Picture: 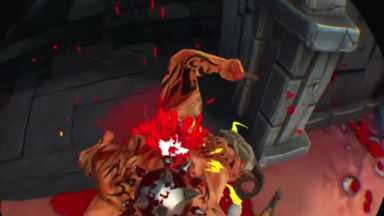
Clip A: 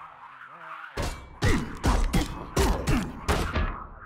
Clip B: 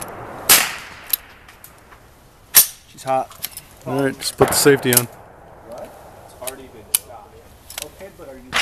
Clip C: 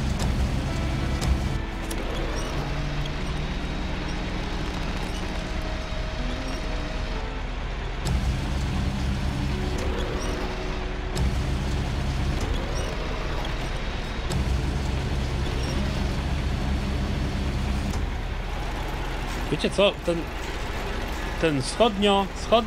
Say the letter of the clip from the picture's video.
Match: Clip A